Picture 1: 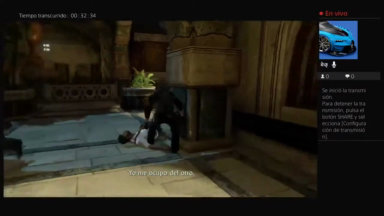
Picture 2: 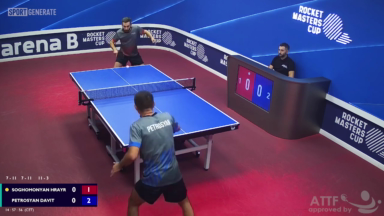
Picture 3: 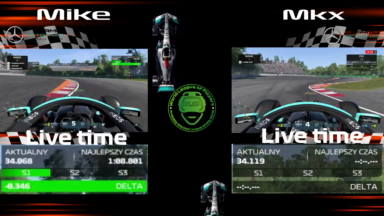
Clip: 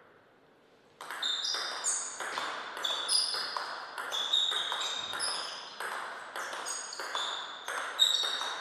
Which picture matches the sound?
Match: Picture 2